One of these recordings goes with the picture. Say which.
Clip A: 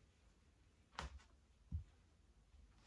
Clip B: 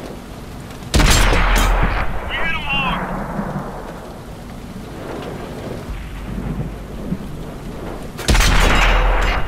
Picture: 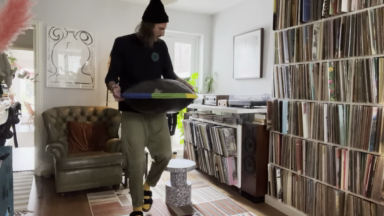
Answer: A